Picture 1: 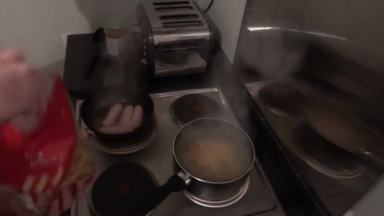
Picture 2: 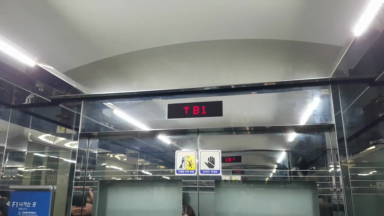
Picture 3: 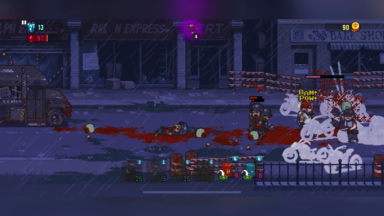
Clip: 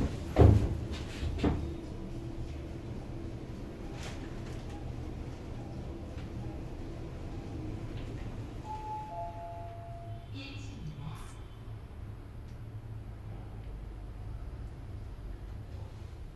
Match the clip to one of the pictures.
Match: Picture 2